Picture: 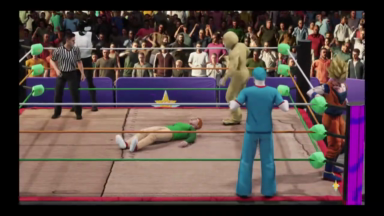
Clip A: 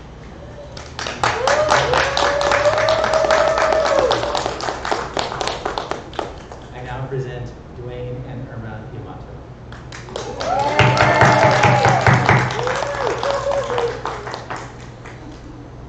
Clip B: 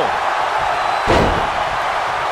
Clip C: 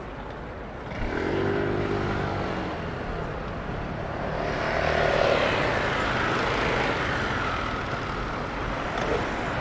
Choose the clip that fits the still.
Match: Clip B